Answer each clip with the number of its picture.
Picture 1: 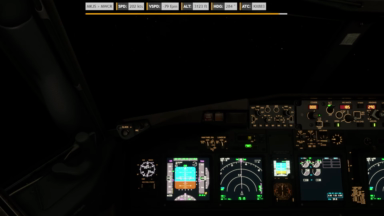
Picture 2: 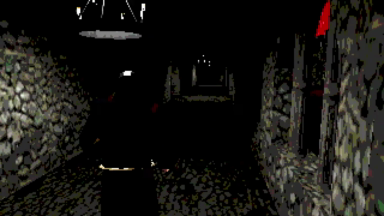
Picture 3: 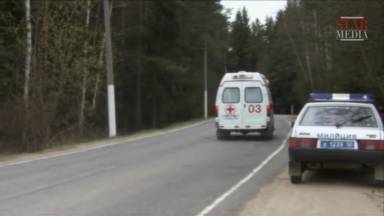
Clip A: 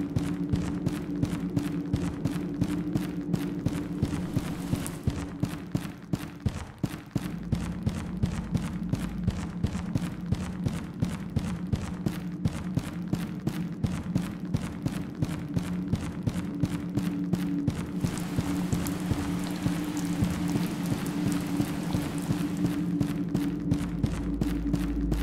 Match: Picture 2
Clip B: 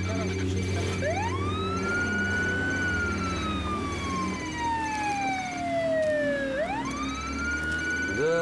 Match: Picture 3